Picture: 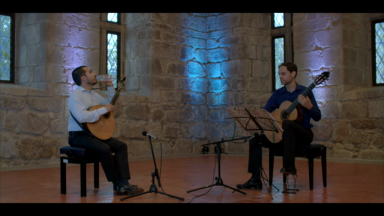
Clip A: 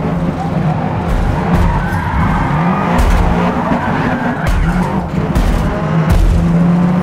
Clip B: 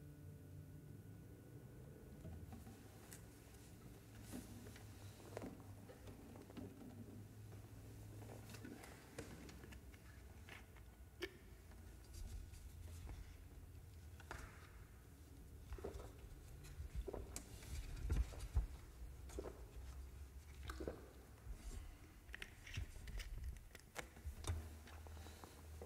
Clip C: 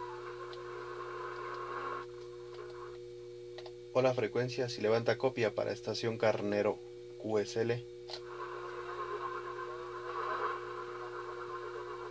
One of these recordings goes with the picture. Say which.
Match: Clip B